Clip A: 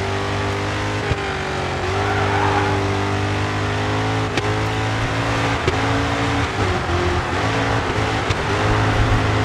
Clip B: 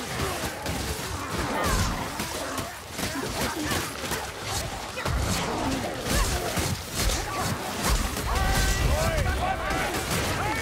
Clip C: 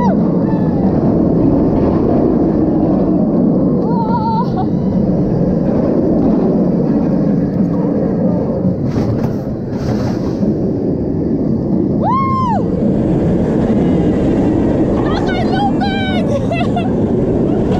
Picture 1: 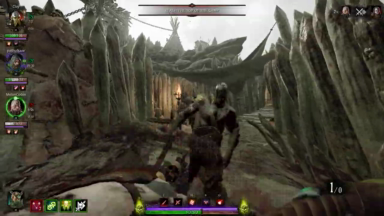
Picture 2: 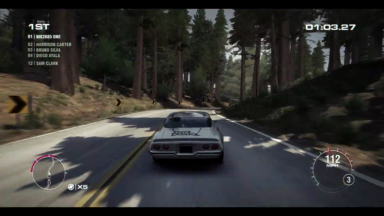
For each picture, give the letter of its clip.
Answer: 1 B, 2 A